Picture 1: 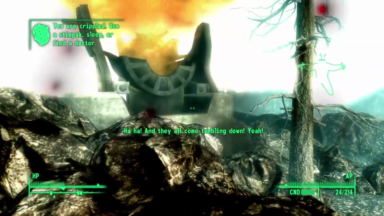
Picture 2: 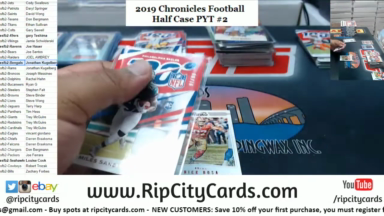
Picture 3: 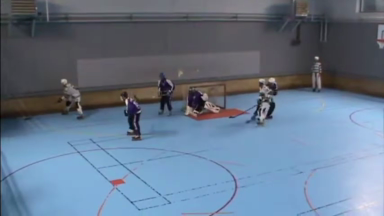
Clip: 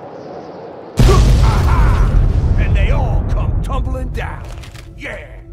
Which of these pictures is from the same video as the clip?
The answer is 1